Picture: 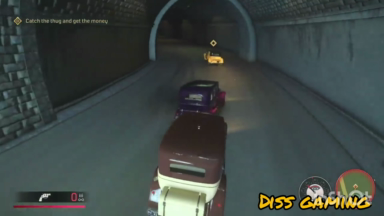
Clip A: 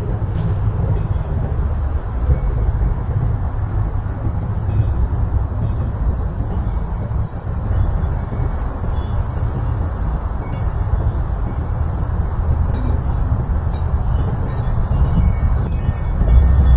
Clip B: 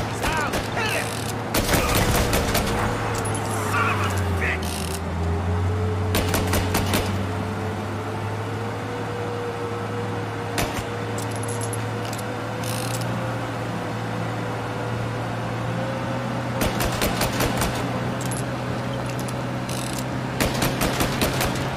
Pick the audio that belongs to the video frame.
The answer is B